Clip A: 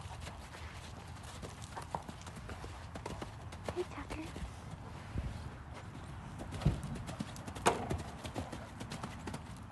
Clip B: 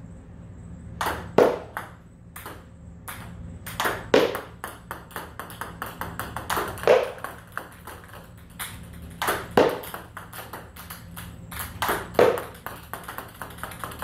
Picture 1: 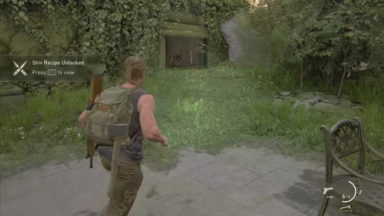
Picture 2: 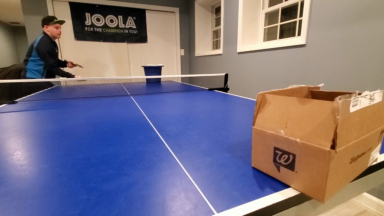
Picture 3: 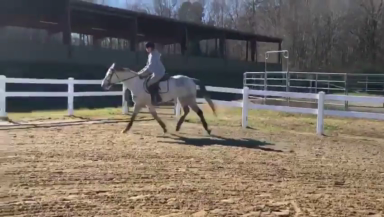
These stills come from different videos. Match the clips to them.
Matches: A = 3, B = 2